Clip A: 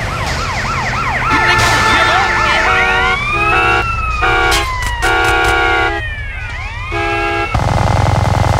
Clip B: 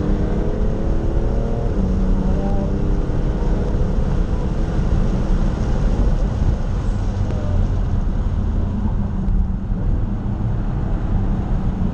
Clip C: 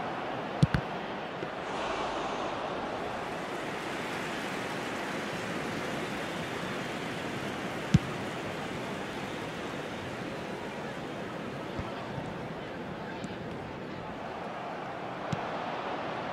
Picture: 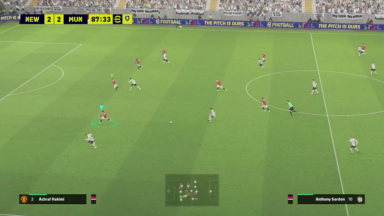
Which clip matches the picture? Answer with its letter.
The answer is C